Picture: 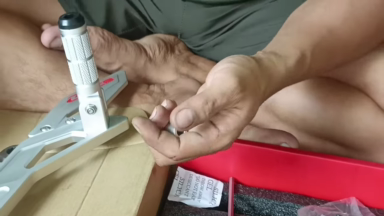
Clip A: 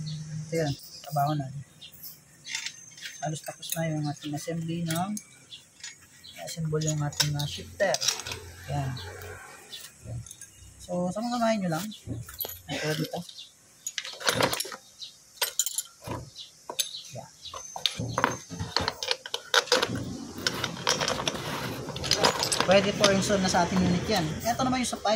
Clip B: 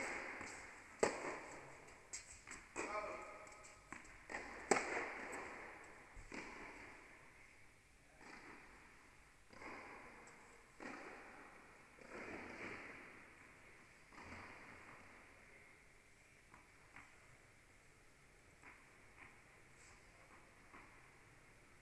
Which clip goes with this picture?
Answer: A